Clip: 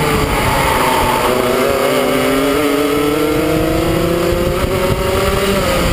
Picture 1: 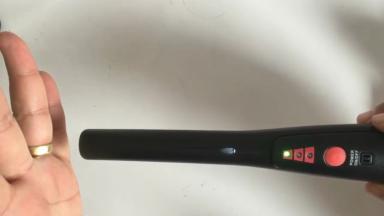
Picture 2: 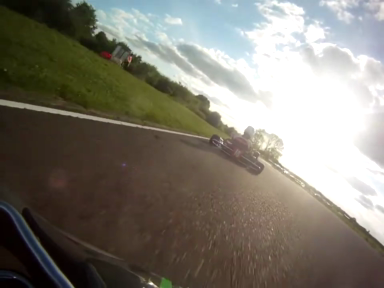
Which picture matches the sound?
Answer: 2